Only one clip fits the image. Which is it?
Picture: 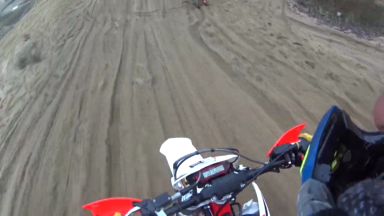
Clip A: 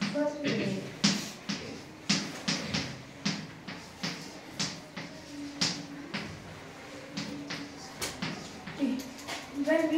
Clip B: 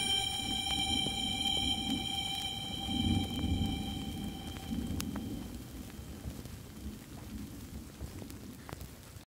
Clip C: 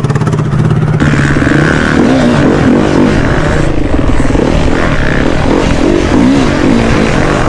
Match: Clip C